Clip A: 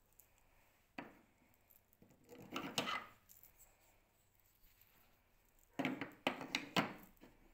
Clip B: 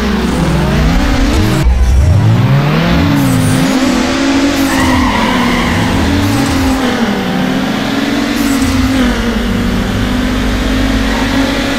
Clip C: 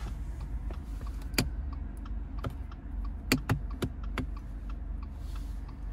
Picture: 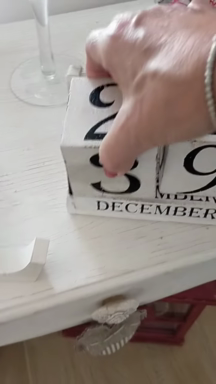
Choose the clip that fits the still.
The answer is A